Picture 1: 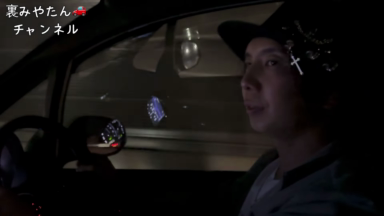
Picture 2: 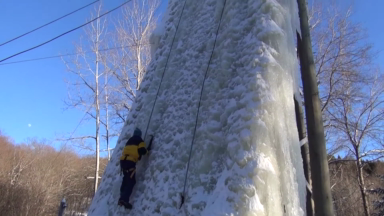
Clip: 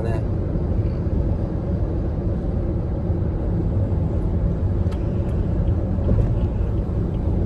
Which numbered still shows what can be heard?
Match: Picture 1